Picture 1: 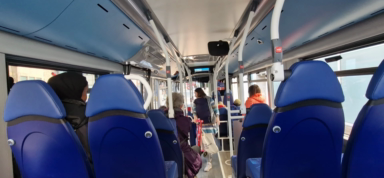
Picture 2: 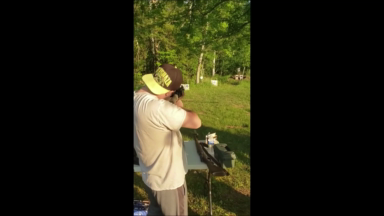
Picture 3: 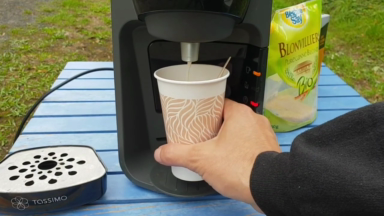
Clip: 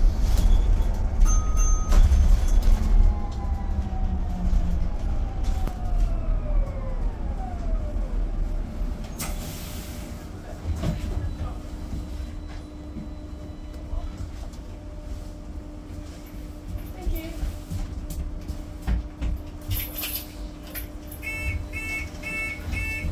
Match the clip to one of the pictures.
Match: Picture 1